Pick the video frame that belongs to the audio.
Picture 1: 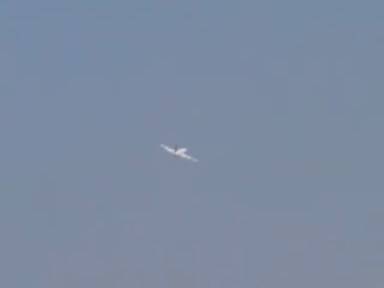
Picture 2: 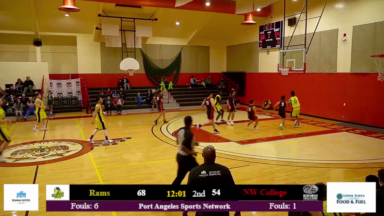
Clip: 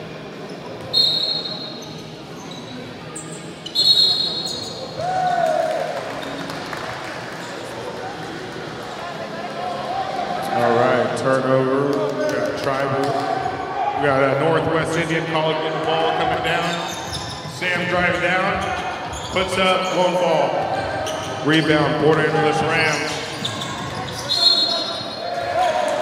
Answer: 2